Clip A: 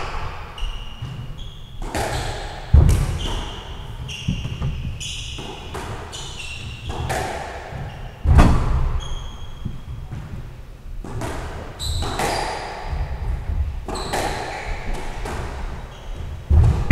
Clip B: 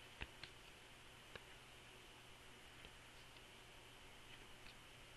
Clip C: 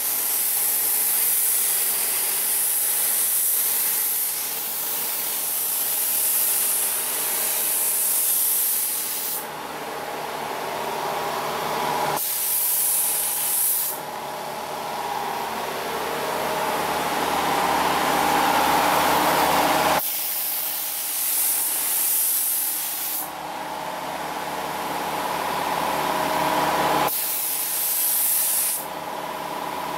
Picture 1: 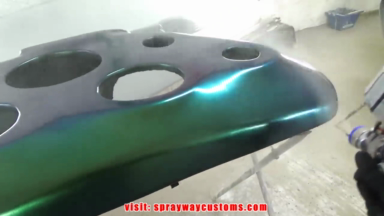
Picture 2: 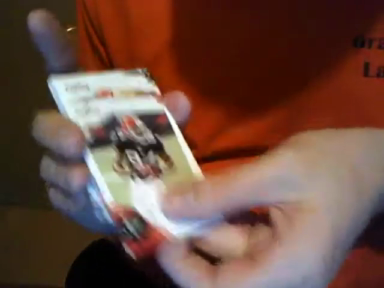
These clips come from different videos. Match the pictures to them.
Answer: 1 C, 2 B